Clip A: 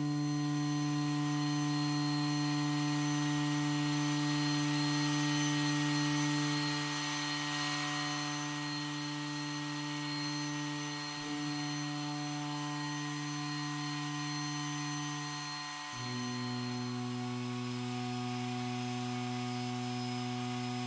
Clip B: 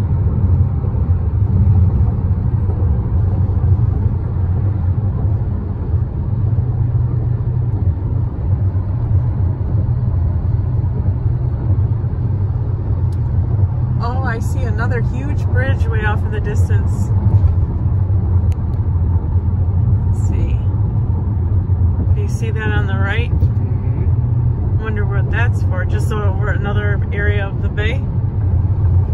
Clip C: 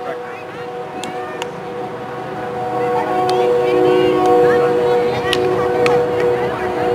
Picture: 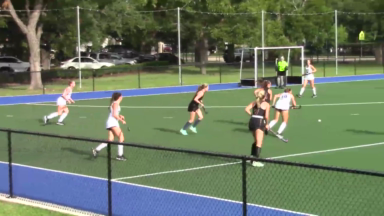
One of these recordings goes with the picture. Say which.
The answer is C